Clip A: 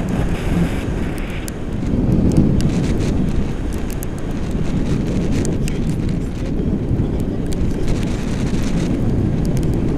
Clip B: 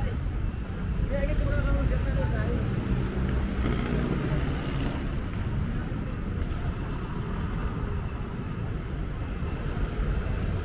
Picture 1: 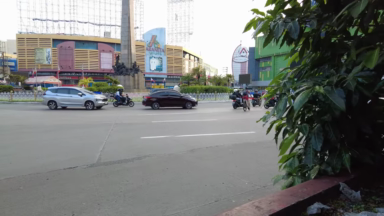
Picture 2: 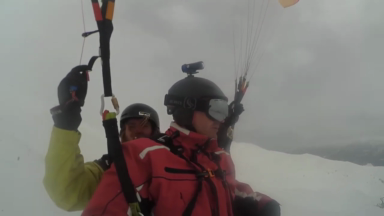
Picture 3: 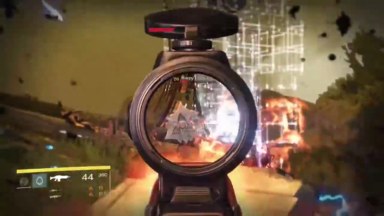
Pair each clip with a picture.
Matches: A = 2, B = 1